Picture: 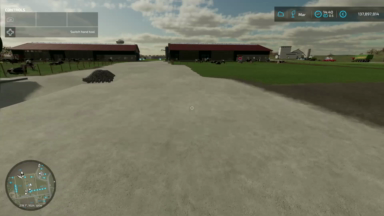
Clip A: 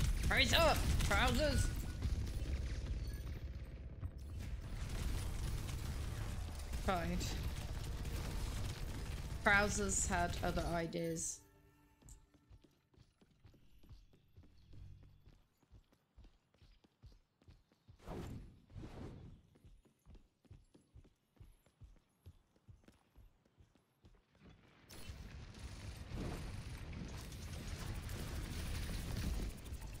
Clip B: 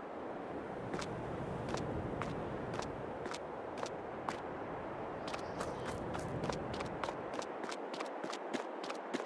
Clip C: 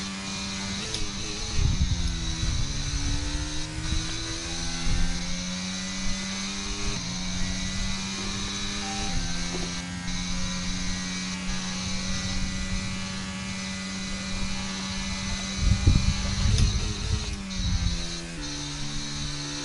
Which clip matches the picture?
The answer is B